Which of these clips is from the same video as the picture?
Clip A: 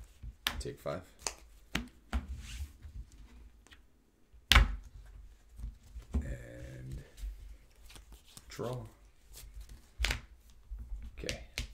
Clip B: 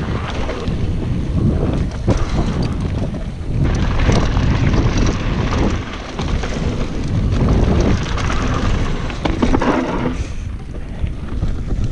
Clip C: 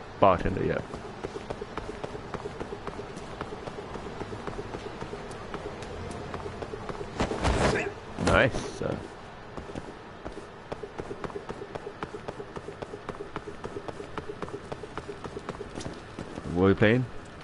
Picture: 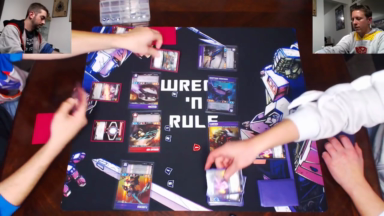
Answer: A